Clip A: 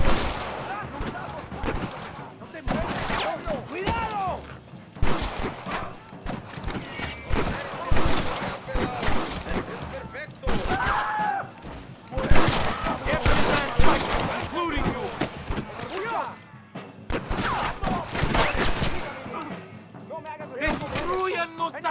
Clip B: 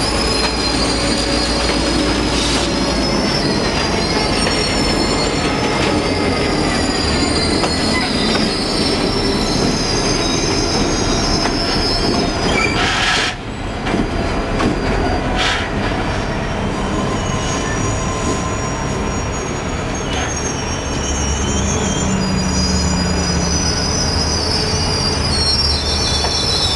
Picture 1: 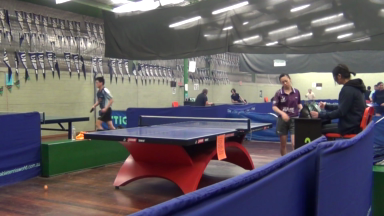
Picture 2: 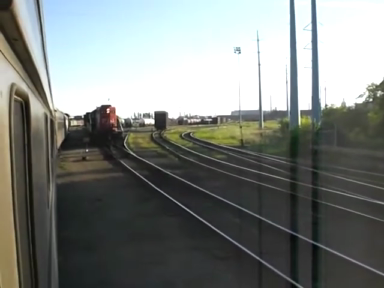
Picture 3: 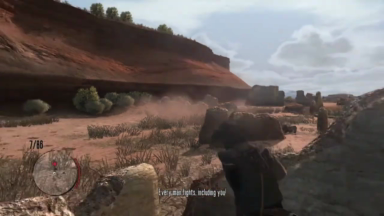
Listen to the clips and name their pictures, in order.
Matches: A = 3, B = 2